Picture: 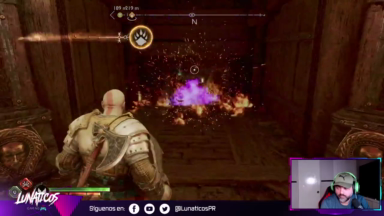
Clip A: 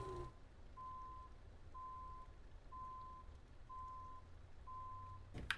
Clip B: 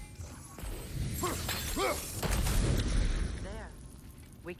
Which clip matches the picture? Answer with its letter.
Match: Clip B